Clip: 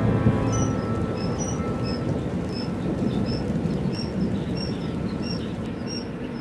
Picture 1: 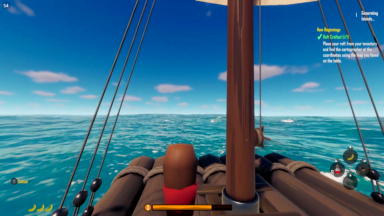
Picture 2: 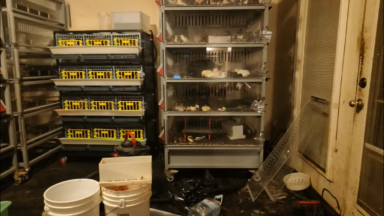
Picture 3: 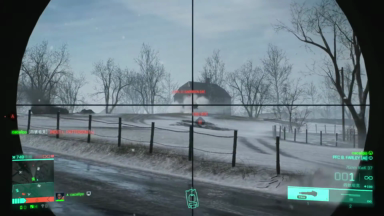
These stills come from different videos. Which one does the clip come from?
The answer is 2